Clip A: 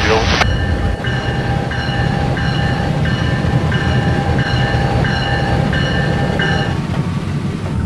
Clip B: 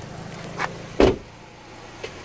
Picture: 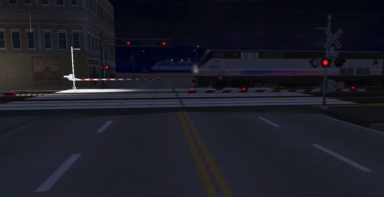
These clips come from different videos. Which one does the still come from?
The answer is A